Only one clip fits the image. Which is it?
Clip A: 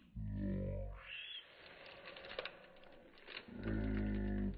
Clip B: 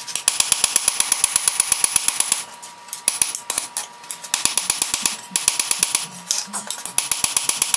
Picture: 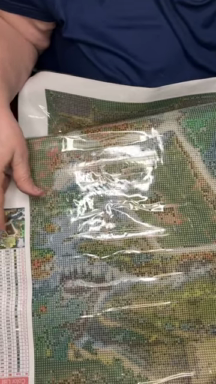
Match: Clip A